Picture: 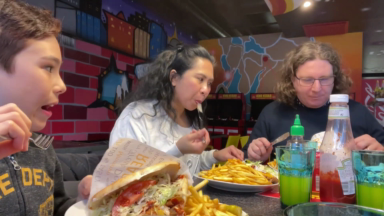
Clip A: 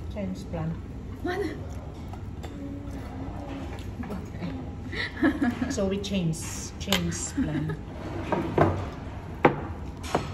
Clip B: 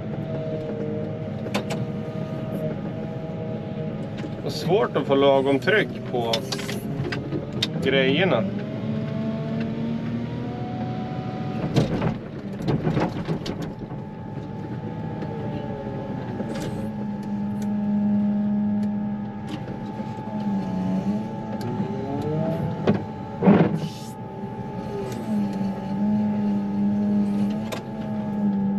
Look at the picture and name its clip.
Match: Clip A